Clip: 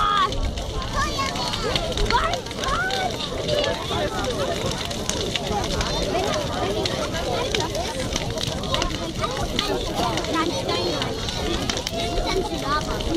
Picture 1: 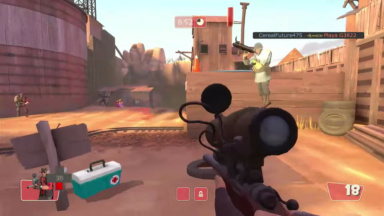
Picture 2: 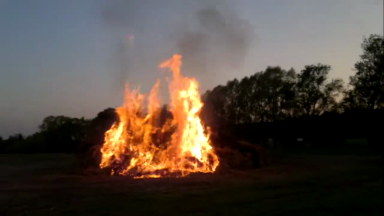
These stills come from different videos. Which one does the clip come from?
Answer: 2